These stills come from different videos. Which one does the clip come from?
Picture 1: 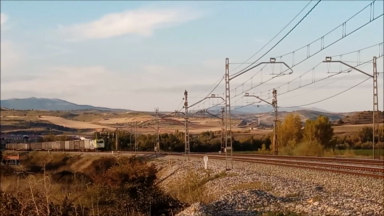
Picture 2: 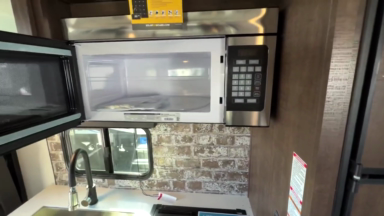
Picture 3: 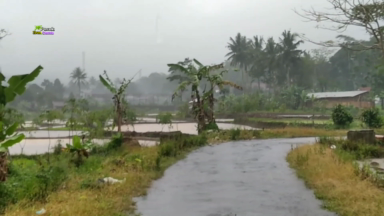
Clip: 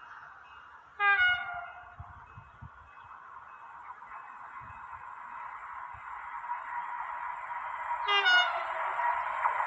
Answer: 1